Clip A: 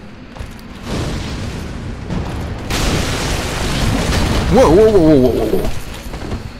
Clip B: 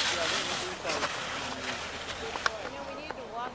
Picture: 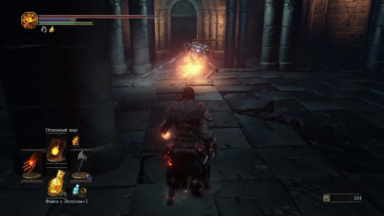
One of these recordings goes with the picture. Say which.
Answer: A